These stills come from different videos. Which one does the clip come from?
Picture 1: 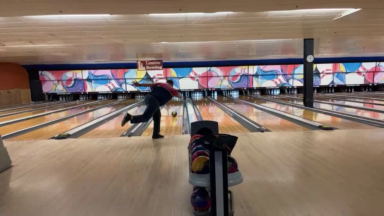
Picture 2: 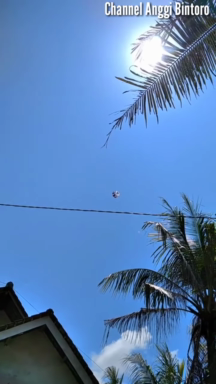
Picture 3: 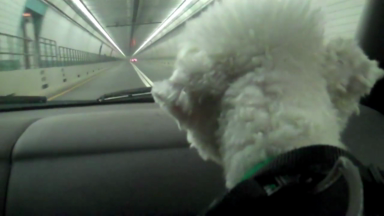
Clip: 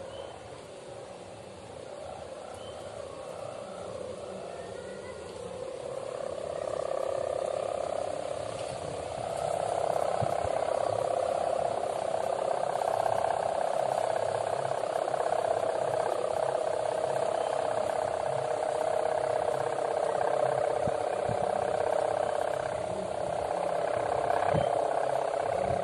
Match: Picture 2